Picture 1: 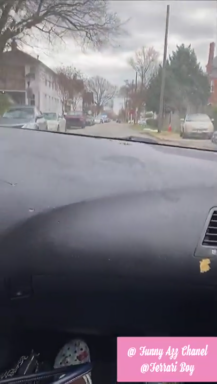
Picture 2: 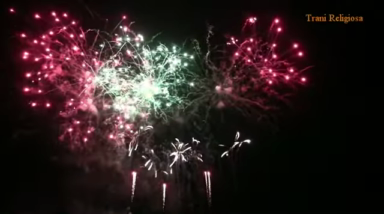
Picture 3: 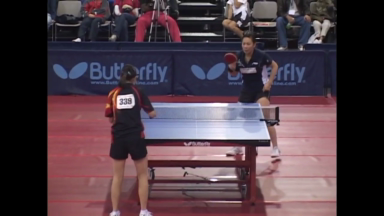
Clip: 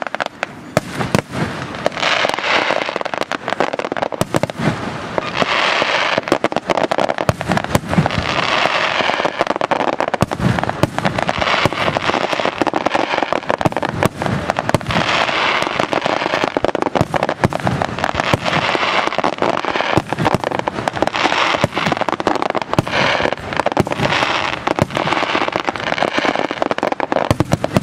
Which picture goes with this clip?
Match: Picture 2